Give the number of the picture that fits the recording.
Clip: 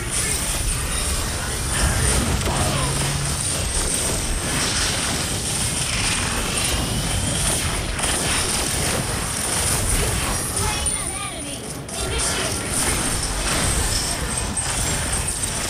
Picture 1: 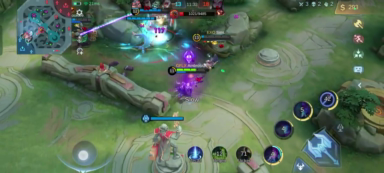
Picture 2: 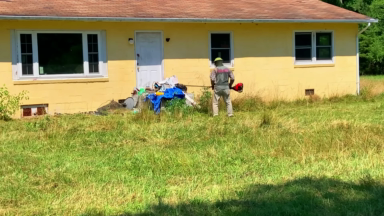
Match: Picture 1